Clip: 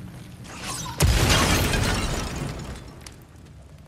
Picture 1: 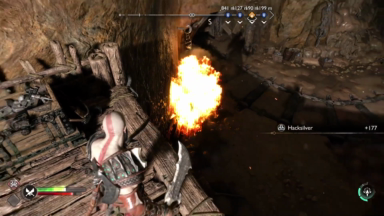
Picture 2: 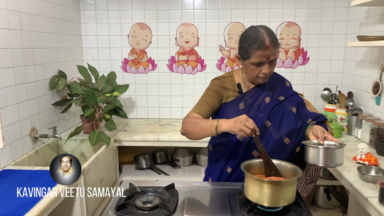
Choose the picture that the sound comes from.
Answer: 1